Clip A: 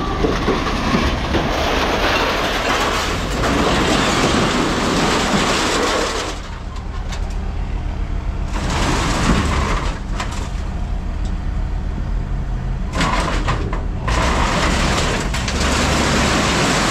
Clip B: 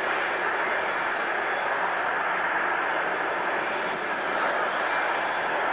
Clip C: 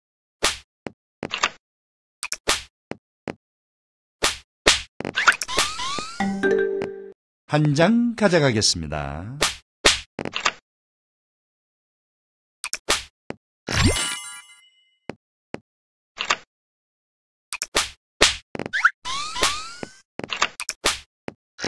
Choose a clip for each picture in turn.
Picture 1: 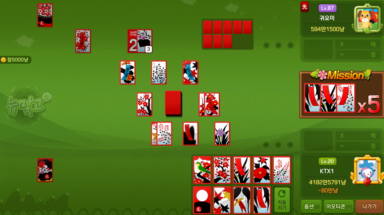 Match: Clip C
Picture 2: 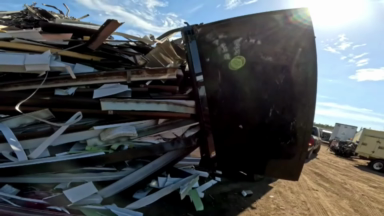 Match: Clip A